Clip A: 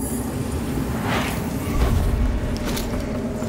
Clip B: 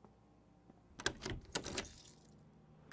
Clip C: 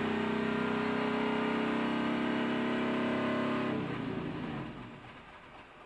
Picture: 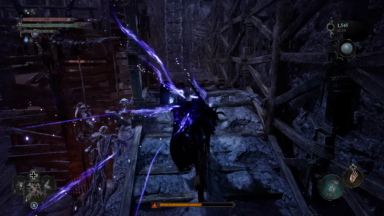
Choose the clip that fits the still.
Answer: A